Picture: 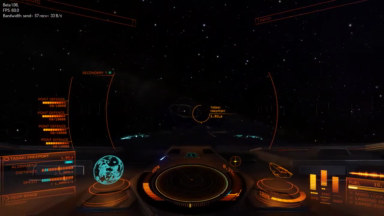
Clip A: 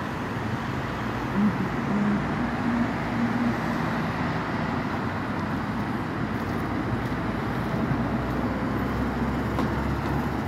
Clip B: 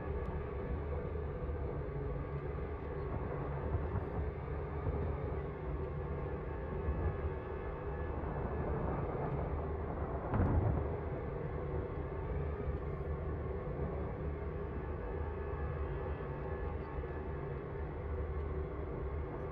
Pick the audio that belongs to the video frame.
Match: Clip B